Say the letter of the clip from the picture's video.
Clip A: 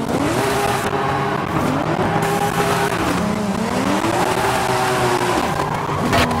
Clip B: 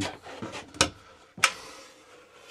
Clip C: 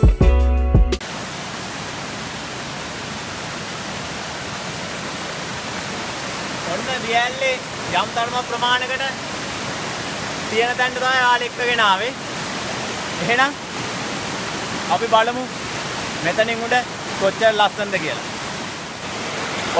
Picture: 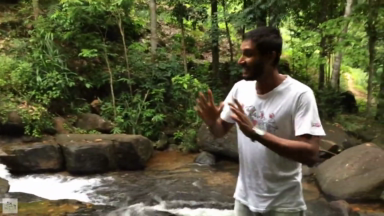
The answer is C